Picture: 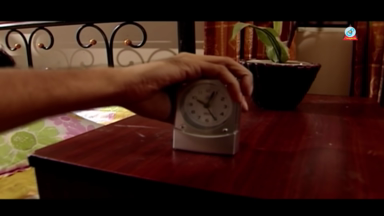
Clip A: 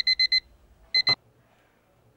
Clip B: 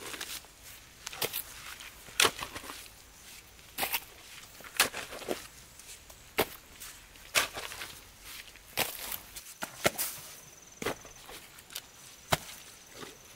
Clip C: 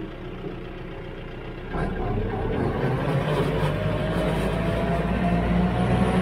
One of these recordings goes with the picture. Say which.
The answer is A